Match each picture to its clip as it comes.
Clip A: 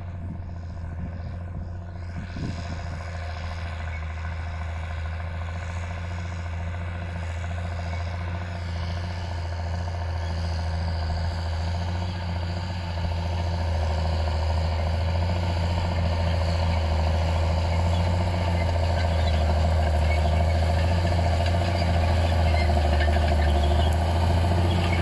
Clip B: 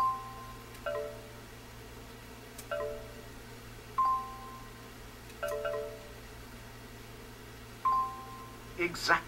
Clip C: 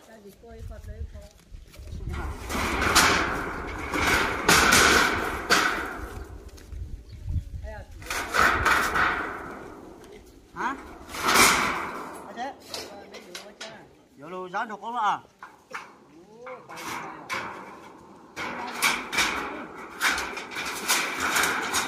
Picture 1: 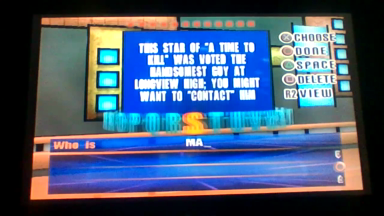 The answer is B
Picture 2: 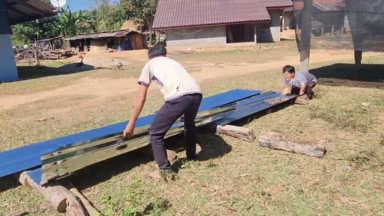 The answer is C